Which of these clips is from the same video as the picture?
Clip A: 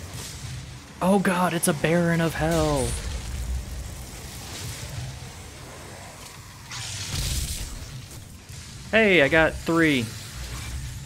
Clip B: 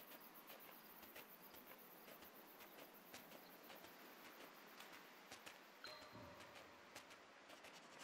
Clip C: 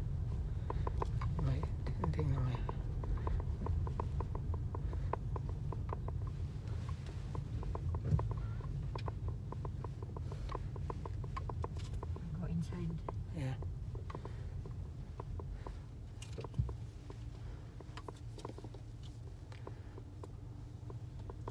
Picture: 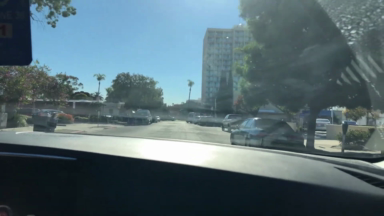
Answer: C